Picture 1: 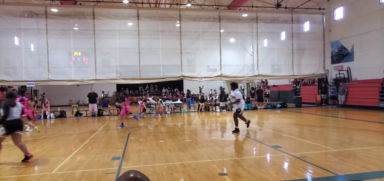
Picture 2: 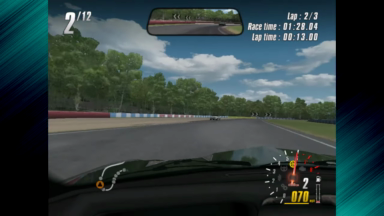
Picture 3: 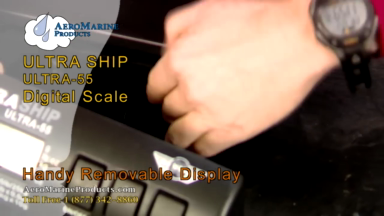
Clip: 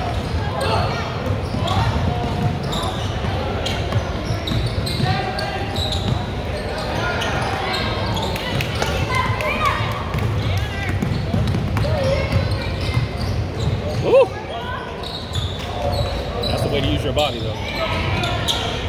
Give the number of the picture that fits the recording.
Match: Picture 1